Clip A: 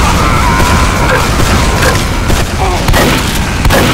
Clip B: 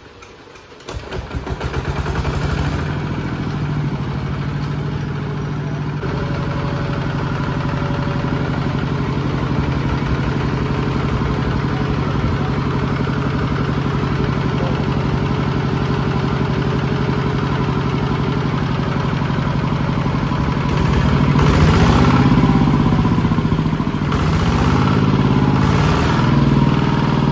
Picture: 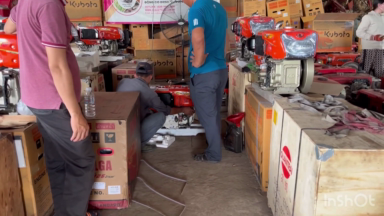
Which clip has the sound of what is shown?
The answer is B